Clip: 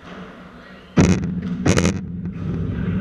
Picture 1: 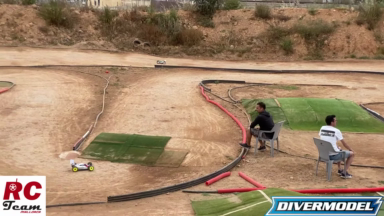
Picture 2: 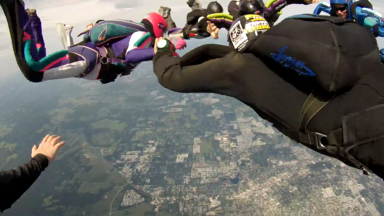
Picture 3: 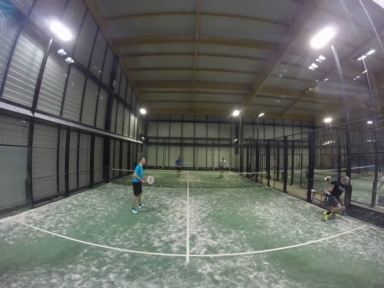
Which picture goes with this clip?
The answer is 3